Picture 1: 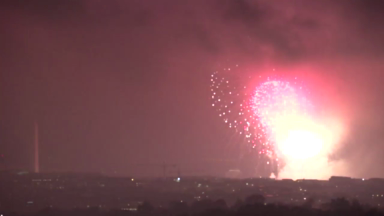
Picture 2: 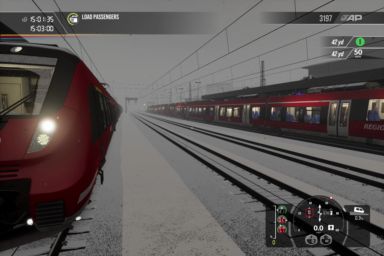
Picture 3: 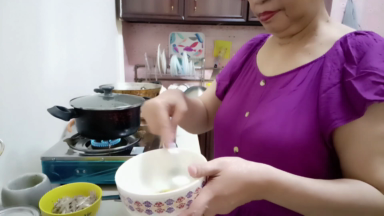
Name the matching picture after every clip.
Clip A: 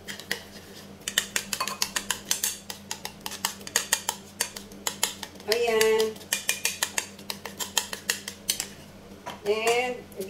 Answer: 3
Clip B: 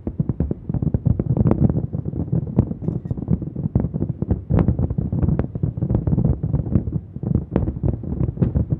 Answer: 1